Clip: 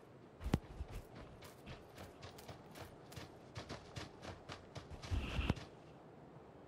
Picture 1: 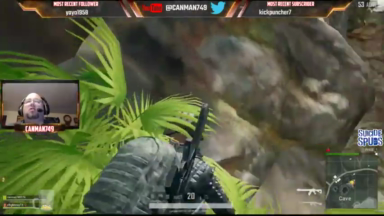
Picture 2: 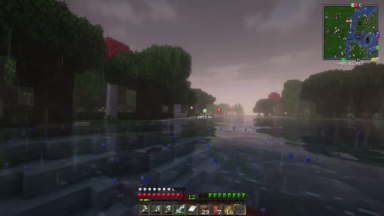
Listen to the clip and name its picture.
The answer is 1